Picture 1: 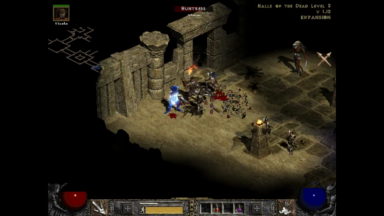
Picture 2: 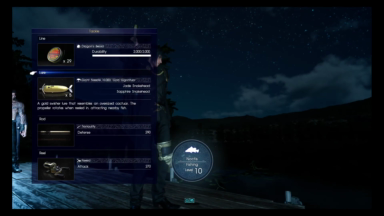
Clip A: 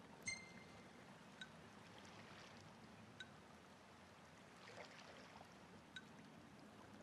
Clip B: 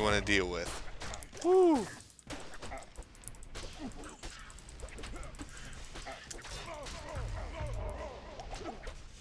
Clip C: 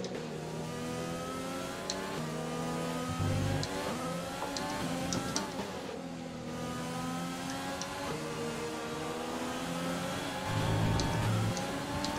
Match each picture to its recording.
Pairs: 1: B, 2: A